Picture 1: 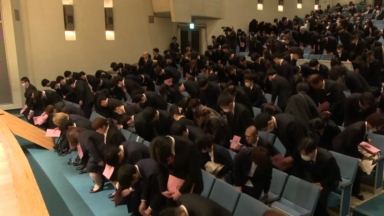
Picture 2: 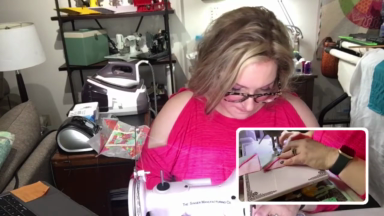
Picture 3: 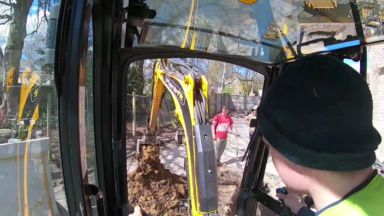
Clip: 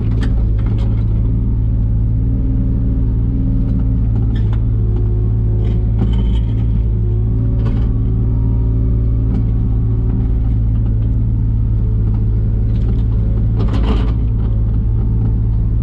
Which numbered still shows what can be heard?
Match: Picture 3